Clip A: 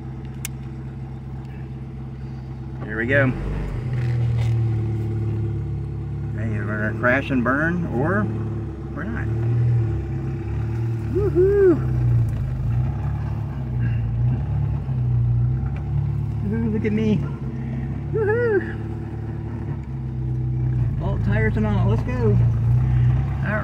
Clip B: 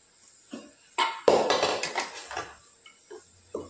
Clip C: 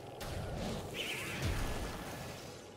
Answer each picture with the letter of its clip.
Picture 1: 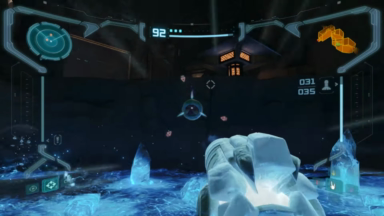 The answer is C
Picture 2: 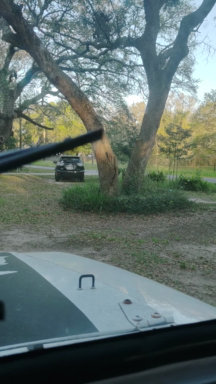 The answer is A